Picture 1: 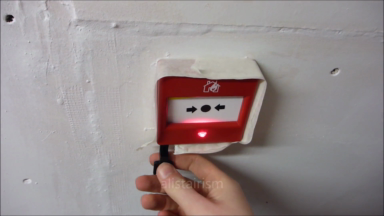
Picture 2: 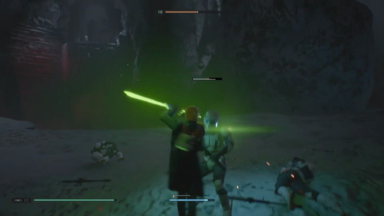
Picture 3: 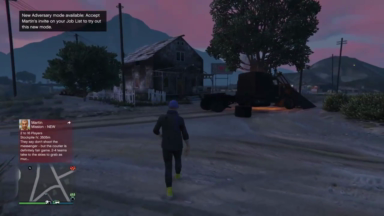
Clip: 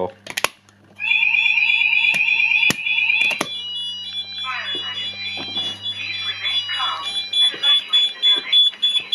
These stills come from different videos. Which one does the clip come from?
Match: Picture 1